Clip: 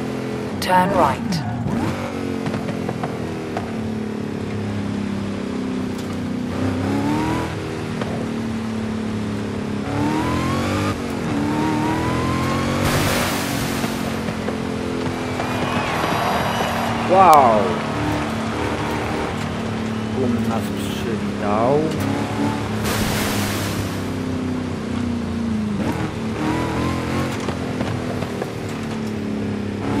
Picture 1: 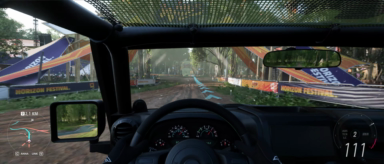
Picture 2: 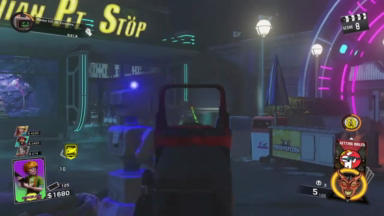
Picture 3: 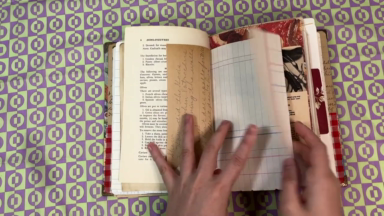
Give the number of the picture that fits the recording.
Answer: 1